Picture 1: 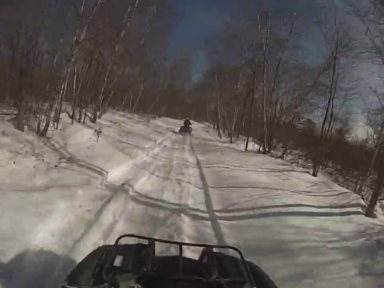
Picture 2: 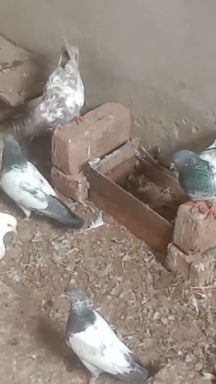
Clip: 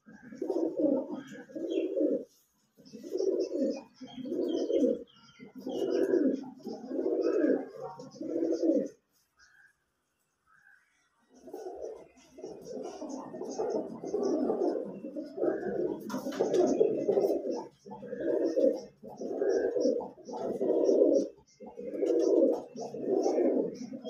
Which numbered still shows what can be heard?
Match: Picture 2